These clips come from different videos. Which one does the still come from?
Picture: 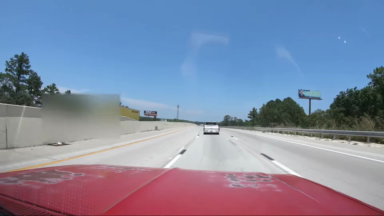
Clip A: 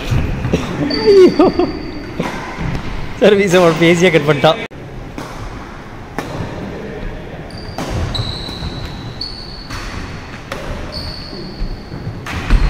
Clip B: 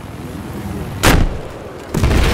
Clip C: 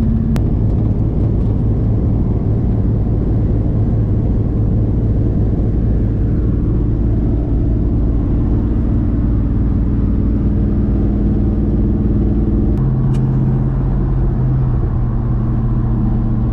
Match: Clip C